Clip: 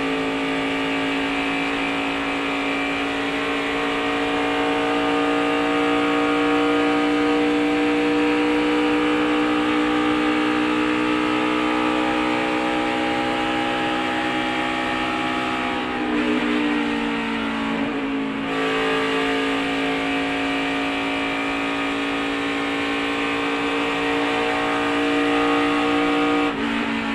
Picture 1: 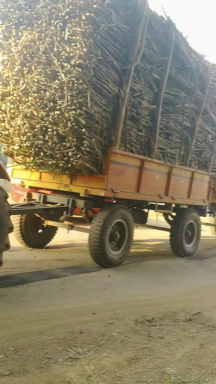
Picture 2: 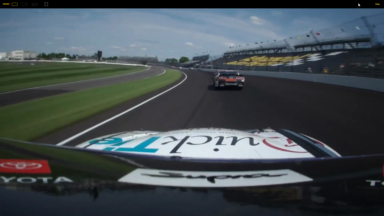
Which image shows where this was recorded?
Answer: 2